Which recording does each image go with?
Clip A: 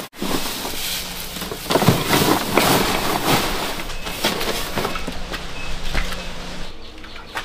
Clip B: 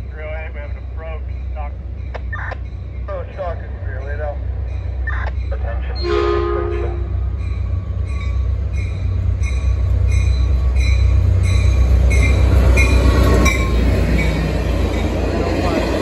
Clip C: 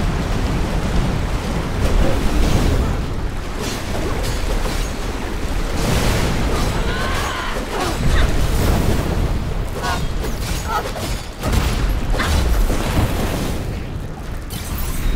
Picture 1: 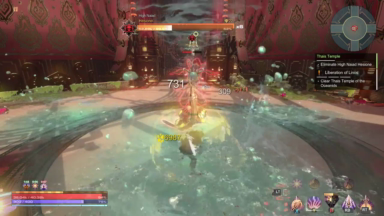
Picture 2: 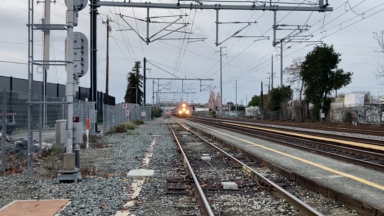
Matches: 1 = C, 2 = B